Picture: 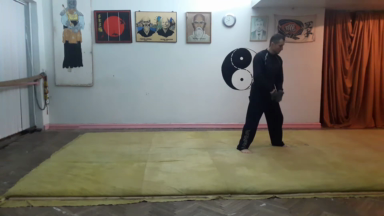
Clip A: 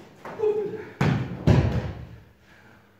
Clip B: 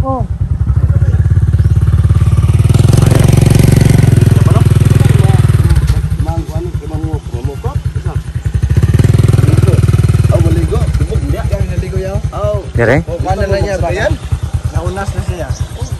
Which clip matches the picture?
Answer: A